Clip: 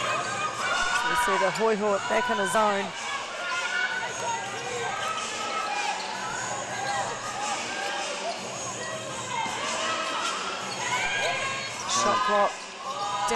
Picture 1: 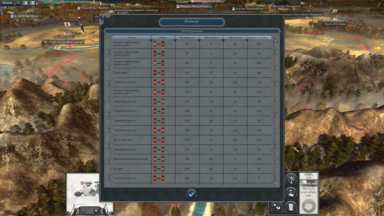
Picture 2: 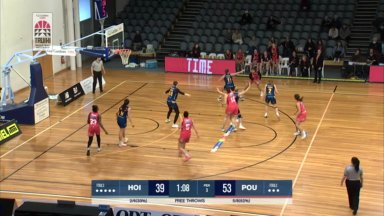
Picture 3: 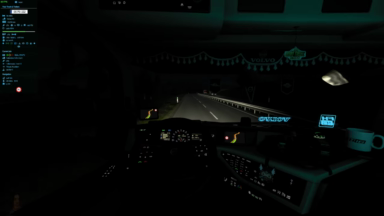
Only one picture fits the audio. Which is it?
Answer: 2